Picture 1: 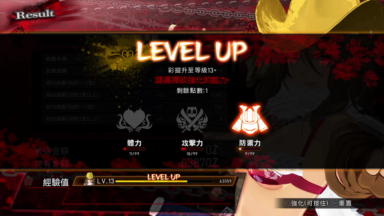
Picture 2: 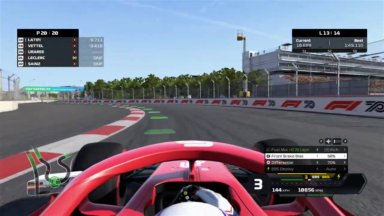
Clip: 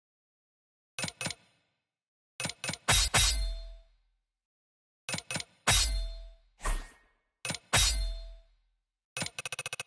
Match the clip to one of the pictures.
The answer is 1